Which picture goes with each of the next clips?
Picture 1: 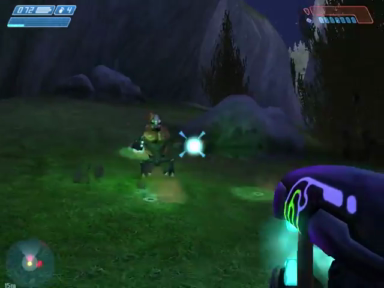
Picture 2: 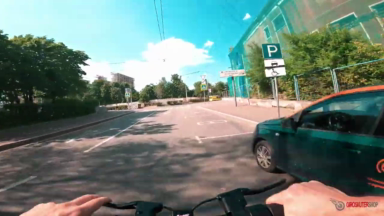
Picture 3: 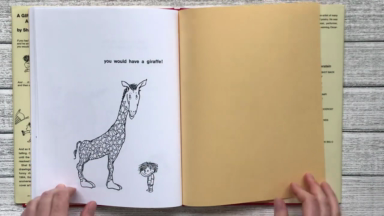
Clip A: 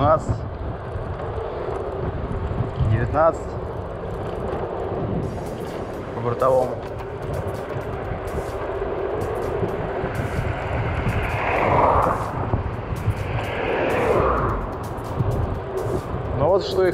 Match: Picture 2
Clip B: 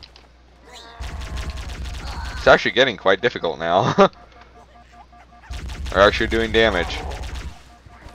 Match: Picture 1